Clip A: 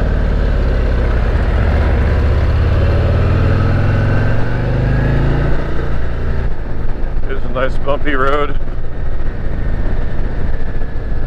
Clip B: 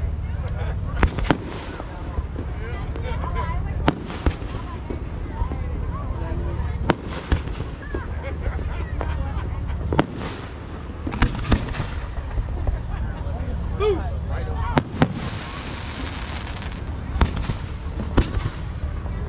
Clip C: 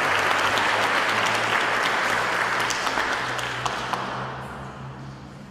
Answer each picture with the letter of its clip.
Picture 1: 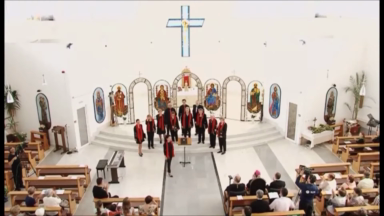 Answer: C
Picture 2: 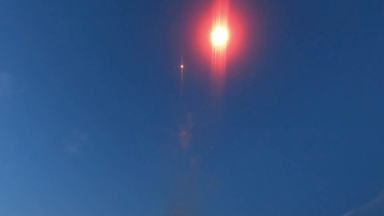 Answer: B